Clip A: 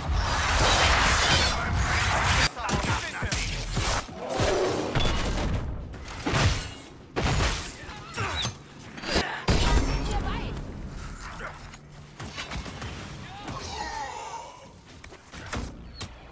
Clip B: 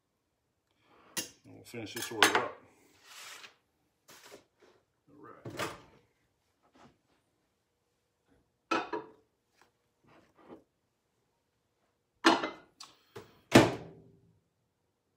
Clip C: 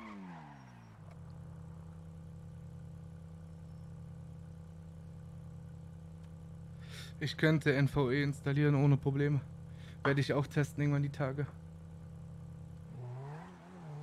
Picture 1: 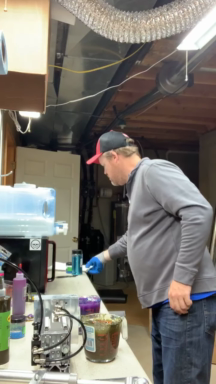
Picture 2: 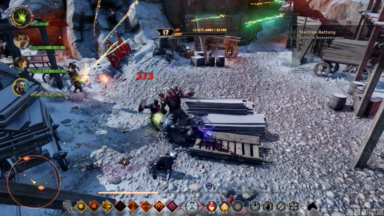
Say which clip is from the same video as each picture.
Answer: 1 B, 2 A